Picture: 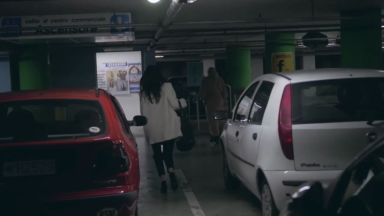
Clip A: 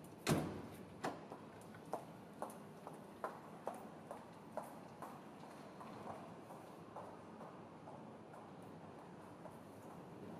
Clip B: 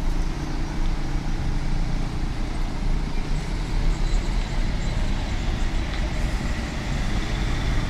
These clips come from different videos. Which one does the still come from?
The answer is A